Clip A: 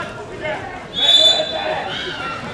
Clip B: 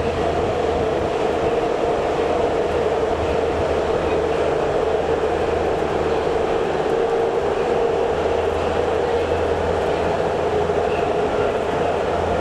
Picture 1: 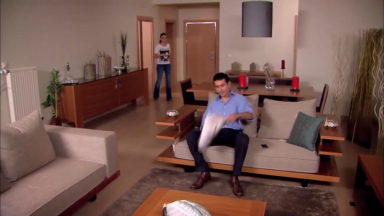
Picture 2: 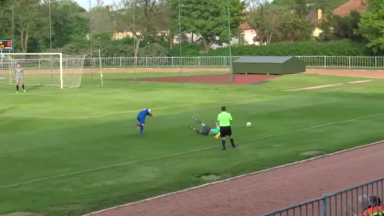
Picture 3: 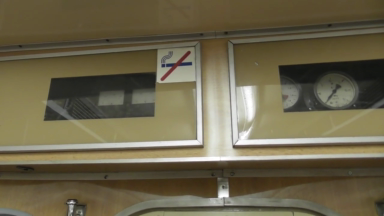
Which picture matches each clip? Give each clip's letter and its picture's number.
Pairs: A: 2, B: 3